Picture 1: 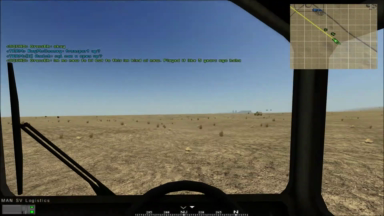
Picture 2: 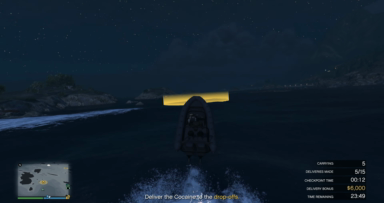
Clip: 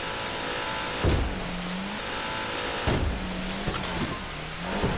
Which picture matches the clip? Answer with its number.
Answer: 2